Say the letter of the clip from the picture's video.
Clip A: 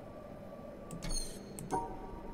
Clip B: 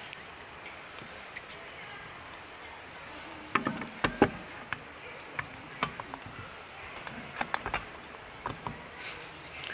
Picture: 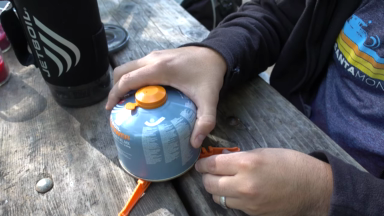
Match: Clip B